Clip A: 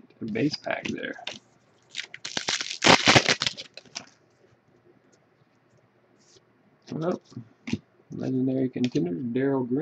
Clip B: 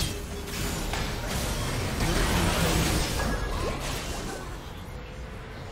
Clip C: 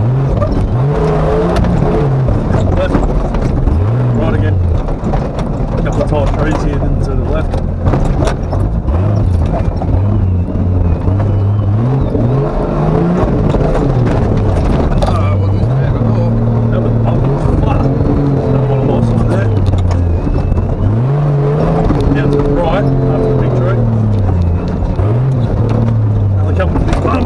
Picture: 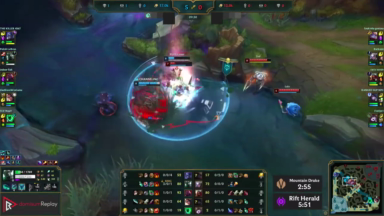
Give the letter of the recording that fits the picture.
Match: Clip B